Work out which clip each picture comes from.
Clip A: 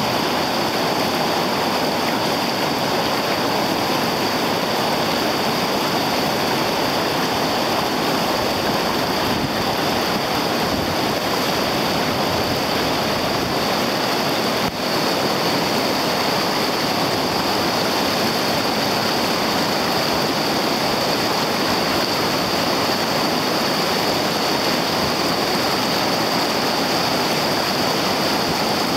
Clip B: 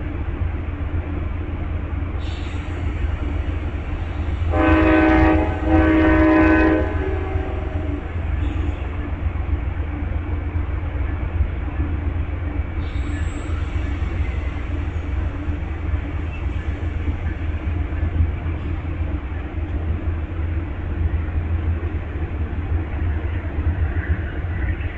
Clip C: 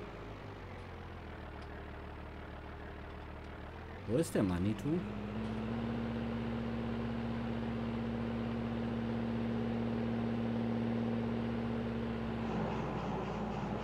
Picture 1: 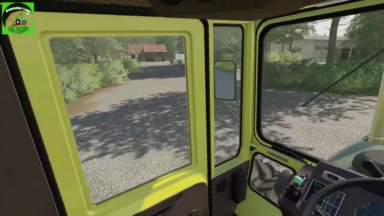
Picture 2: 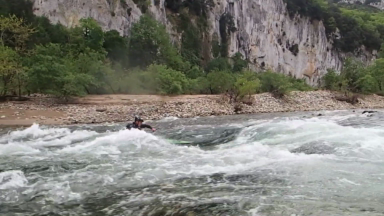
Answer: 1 C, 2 A